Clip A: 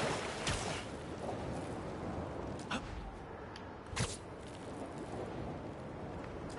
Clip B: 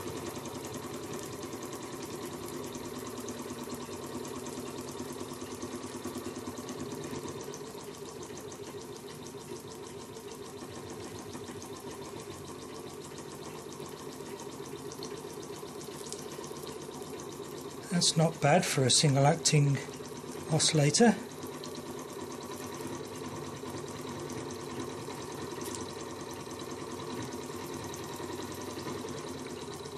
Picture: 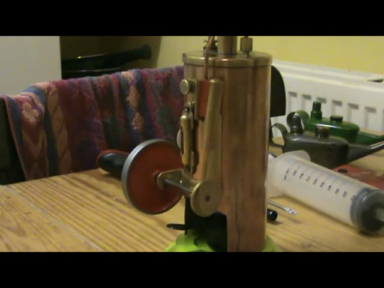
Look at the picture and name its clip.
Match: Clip B